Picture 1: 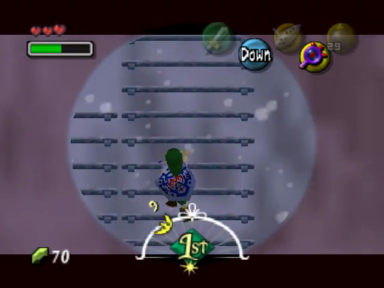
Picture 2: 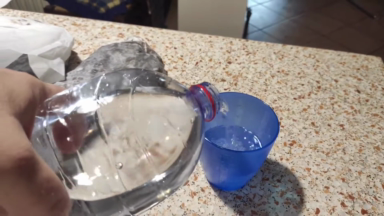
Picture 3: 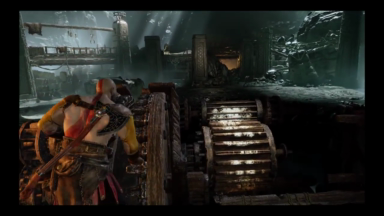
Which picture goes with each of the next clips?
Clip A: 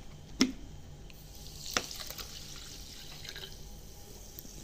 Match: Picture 2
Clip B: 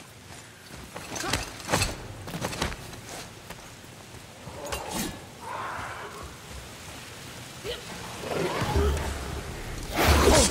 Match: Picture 3